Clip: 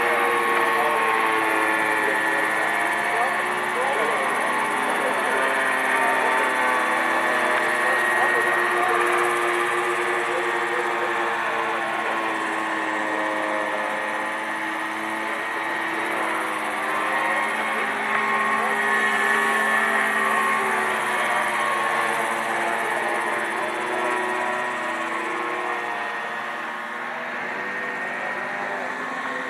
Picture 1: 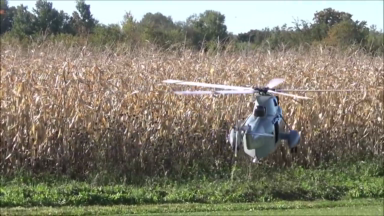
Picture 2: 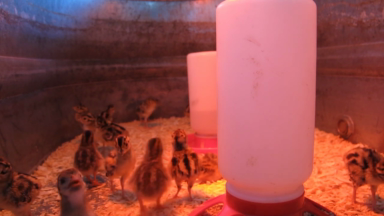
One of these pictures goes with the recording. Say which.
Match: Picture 1